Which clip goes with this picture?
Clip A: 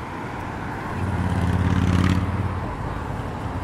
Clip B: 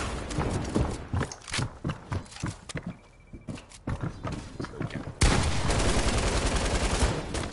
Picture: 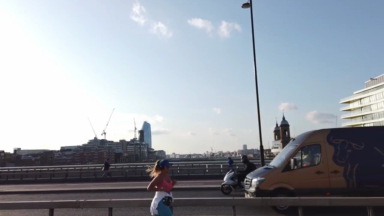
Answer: A